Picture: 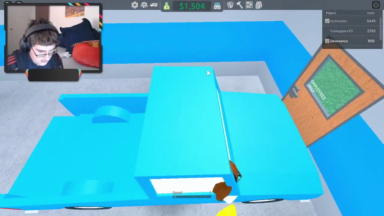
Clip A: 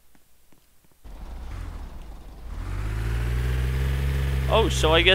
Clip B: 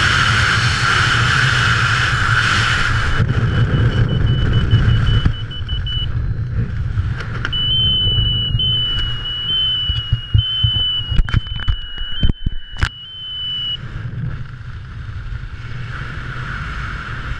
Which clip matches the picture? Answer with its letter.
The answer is A